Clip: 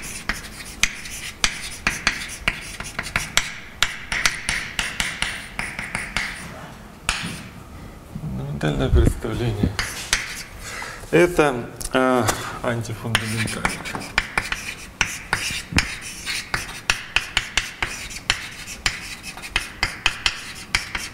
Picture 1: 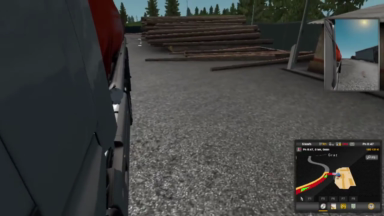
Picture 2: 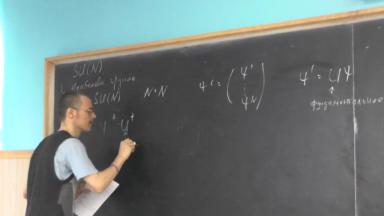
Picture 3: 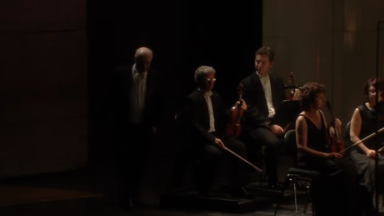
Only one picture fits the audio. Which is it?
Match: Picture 2